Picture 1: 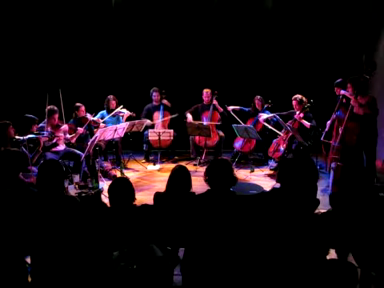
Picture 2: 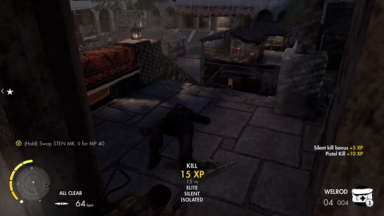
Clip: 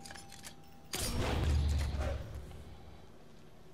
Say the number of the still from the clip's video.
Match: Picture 2